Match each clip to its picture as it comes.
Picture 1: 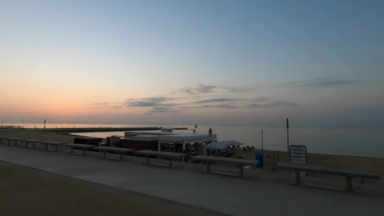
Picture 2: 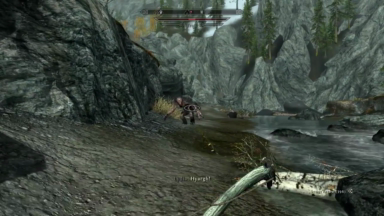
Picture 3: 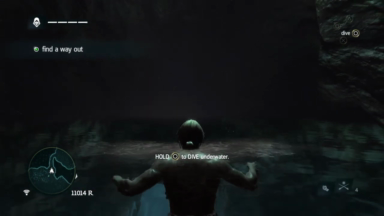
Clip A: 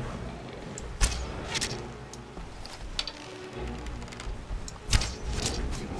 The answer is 2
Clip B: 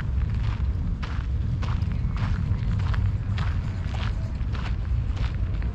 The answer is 1